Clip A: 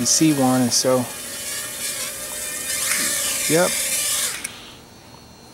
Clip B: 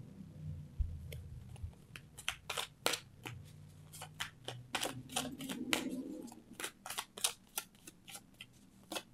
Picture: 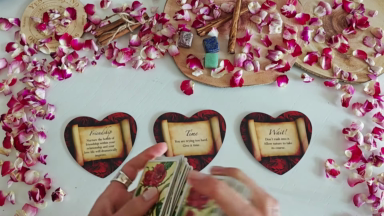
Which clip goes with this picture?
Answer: B